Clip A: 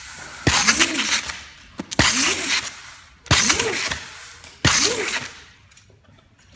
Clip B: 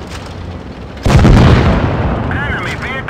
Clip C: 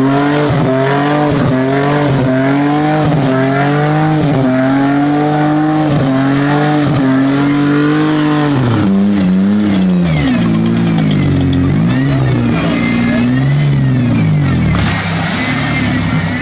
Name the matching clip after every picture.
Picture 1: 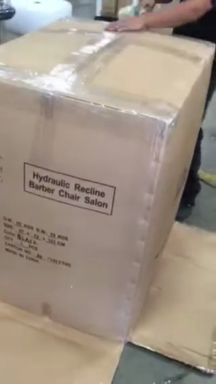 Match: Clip A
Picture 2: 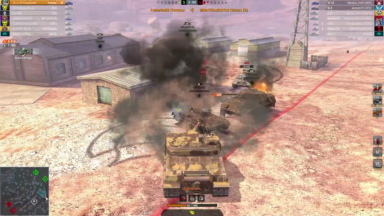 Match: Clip B